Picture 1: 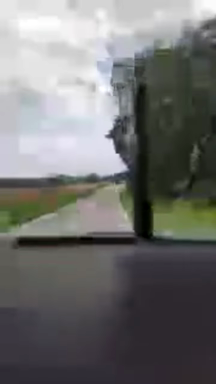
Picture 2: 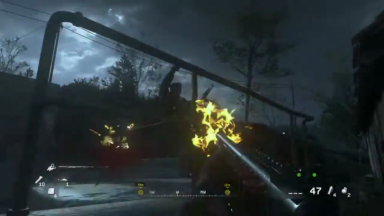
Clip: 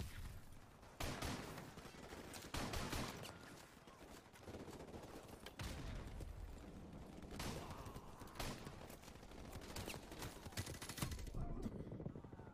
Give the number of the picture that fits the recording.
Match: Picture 2